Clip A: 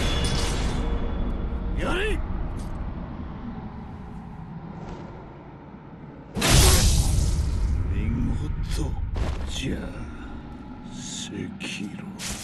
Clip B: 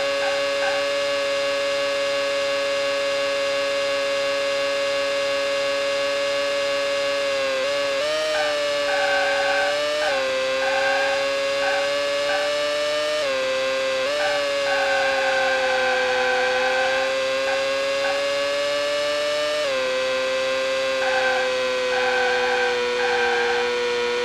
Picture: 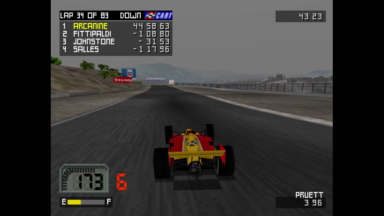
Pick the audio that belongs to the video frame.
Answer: B